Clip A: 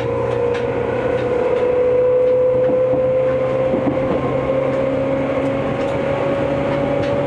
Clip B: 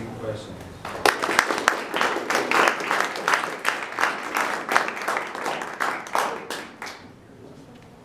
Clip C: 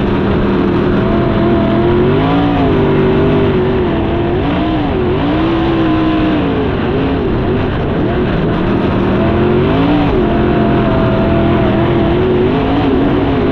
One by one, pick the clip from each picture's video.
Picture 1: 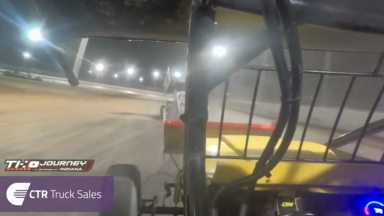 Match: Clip C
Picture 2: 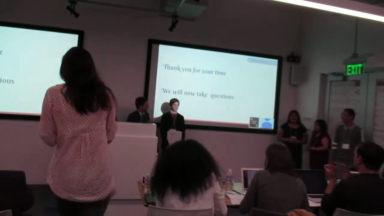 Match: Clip B